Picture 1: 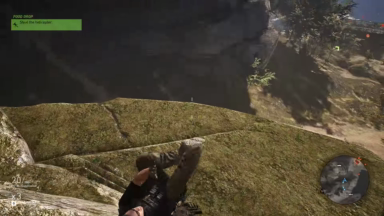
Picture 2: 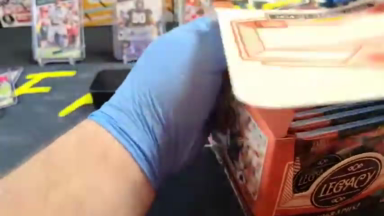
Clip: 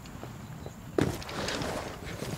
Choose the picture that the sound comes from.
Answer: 1